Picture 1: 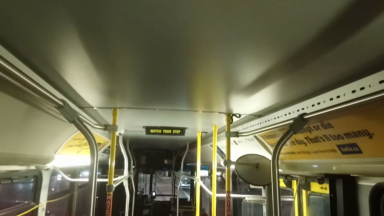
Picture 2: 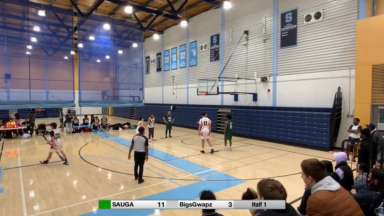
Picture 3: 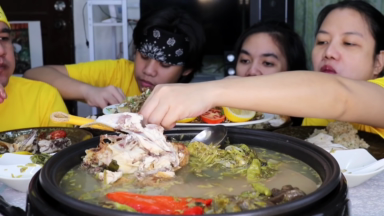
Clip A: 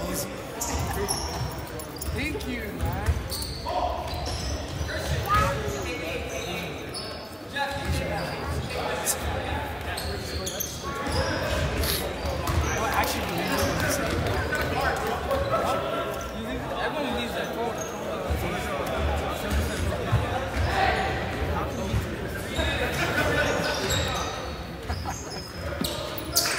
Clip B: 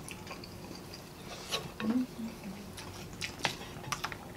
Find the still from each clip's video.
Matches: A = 2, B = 3